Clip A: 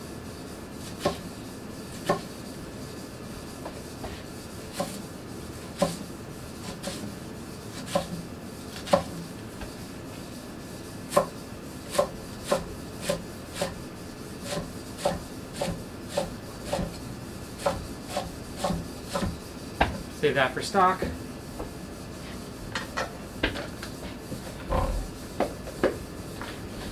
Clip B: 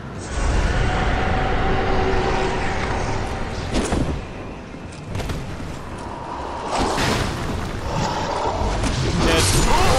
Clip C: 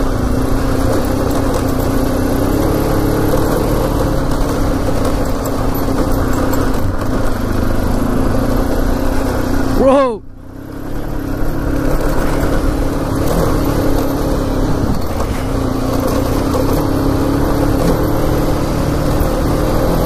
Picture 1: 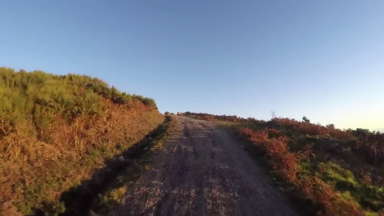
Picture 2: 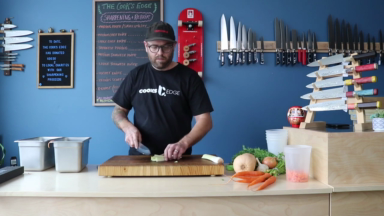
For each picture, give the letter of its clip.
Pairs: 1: C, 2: A